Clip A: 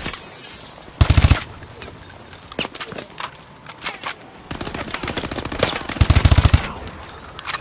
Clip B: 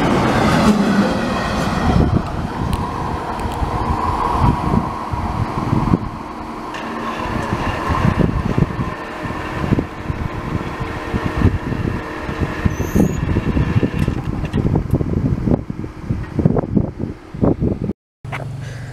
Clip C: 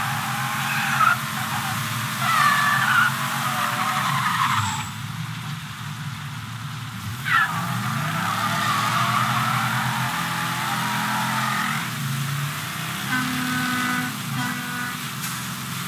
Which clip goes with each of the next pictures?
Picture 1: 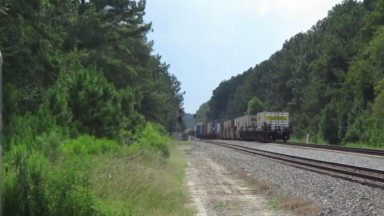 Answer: B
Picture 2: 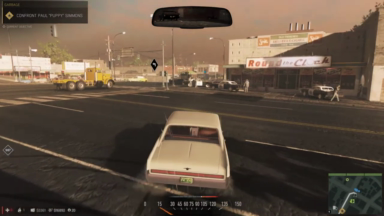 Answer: C